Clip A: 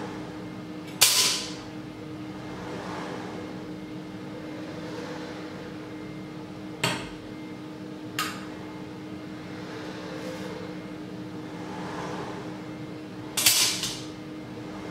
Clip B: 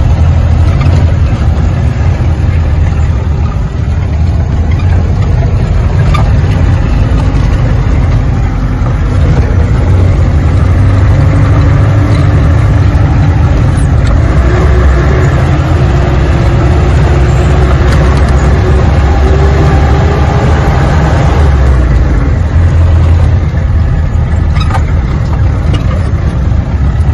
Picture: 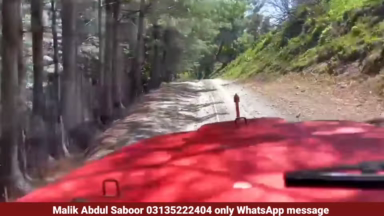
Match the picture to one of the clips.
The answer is B